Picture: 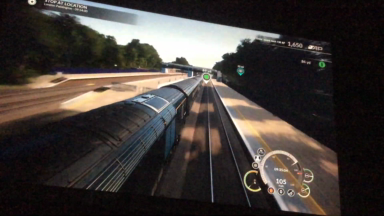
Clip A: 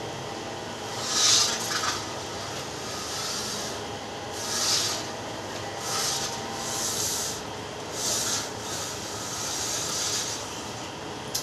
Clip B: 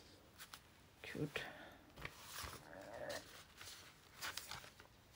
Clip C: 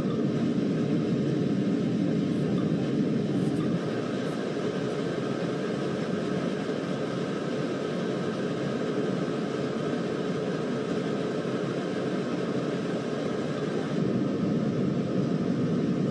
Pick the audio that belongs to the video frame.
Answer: C